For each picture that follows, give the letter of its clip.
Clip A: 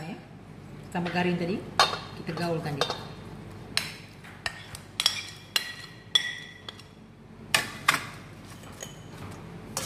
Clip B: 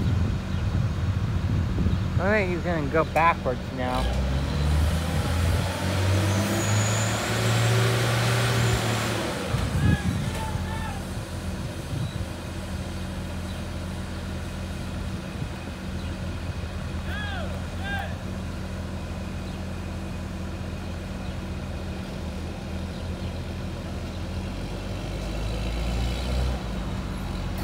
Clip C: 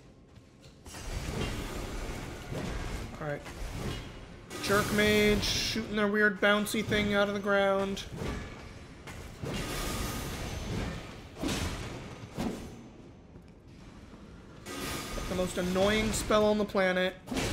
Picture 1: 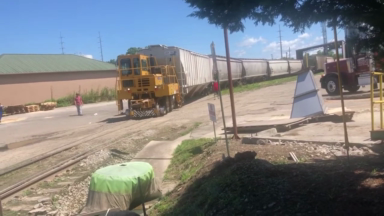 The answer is B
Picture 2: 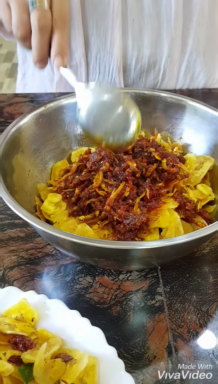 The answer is A